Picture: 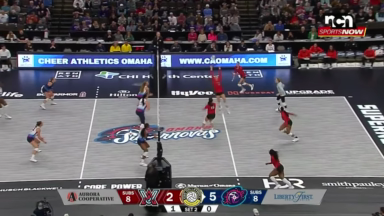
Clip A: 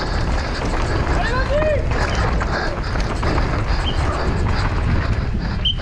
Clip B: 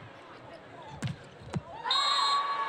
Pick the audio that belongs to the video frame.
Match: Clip B